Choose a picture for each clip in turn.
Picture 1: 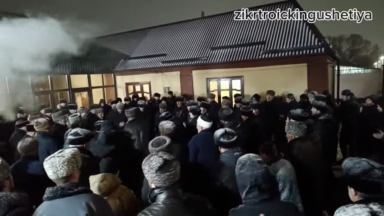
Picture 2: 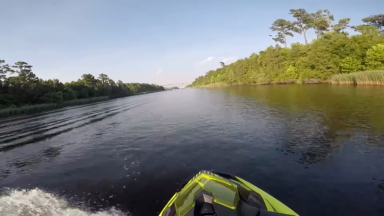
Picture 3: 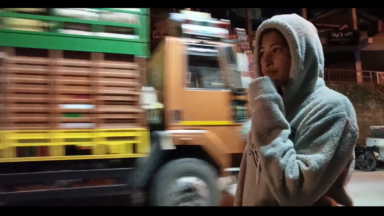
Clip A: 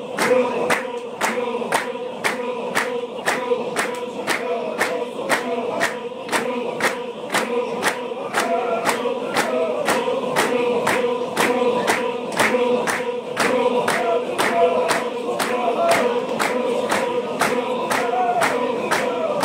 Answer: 1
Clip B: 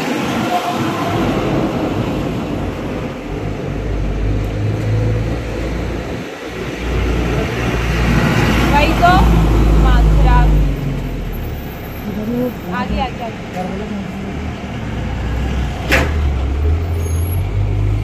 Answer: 3